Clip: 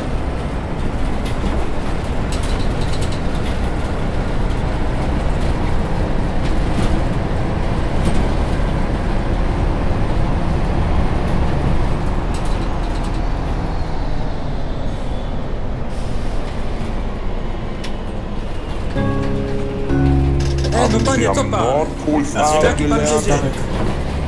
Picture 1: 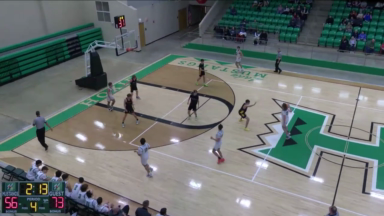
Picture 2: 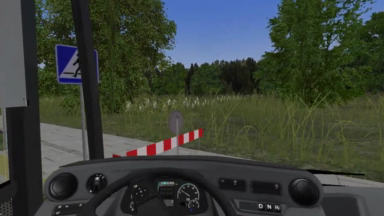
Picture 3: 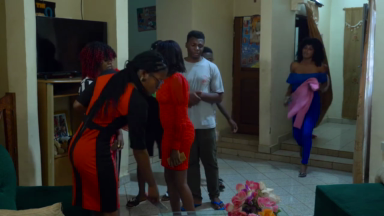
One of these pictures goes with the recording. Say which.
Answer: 2